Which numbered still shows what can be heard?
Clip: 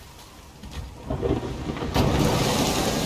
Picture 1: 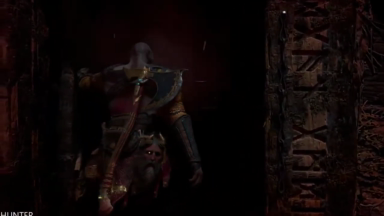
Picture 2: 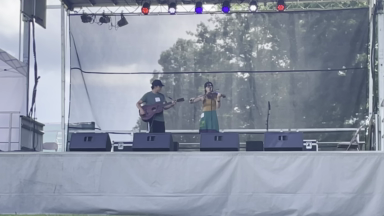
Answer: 1